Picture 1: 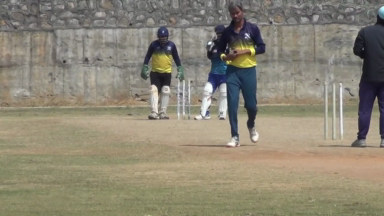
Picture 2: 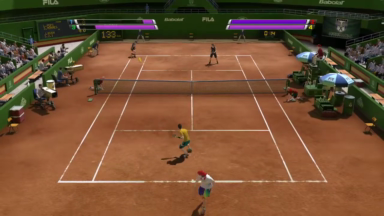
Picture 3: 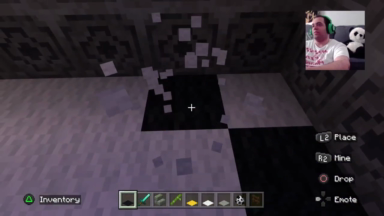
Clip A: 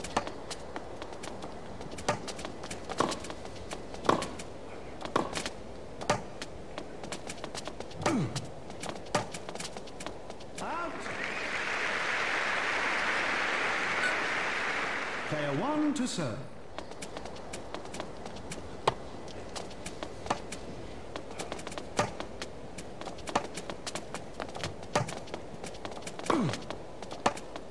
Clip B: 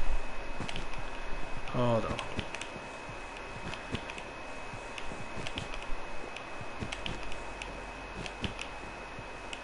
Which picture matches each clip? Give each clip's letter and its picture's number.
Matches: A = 2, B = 3